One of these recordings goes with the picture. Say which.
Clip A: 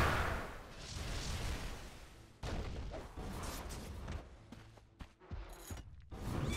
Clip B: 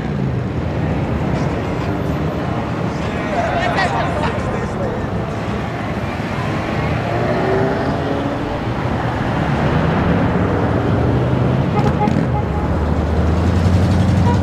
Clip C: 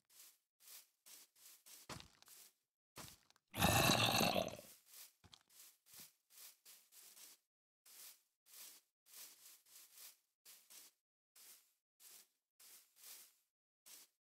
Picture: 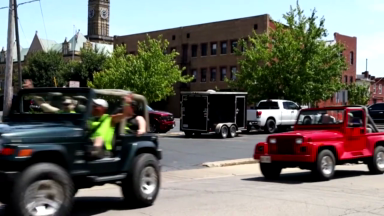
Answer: B